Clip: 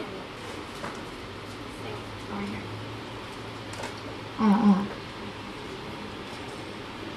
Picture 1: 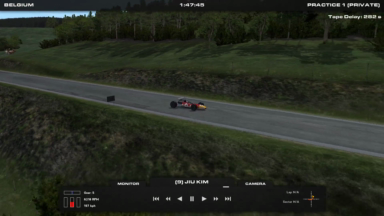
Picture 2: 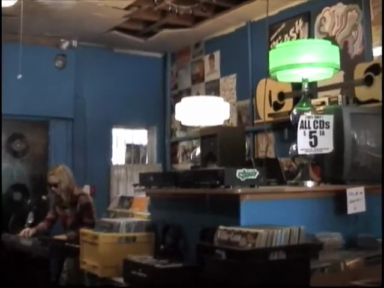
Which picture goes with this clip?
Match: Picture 2